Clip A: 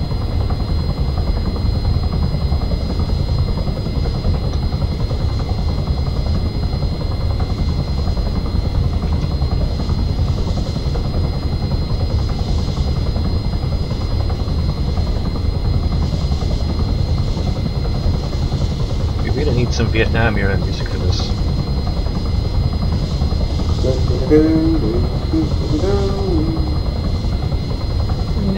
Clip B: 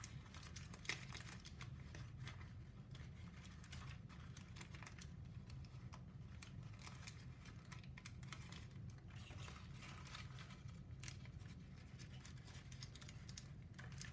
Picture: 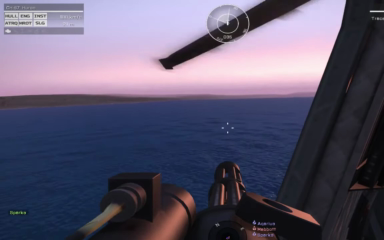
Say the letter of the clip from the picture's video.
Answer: A